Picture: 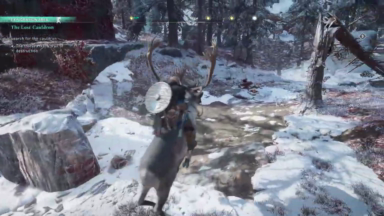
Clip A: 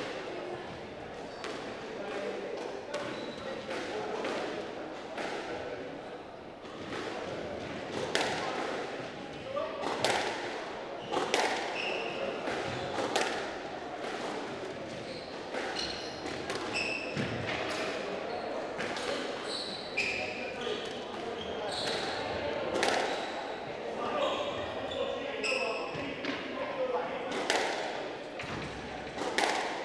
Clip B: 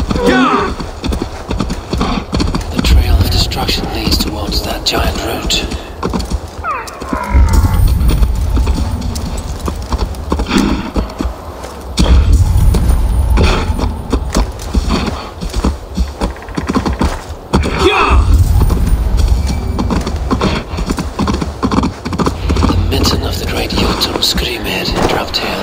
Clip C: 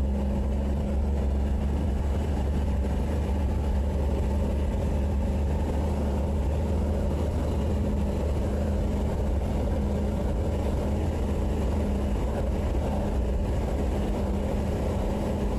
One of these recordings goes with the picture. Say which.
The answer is B